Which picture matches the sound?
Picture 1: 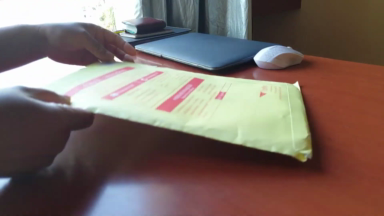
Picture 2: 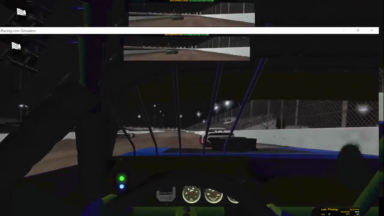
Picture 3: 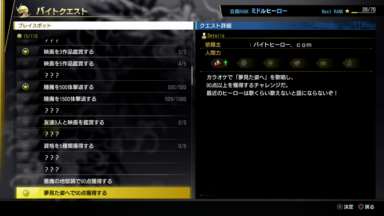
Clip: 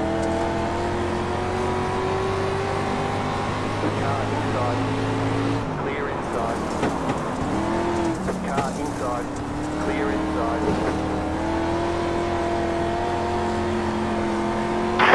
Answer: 2